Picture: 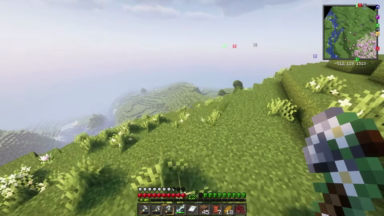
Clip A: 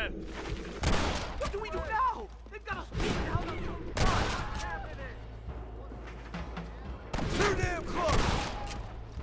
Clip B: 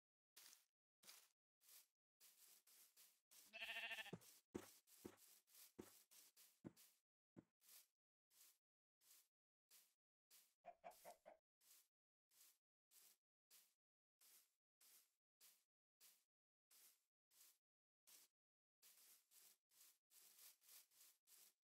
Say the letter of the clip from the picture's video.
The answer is B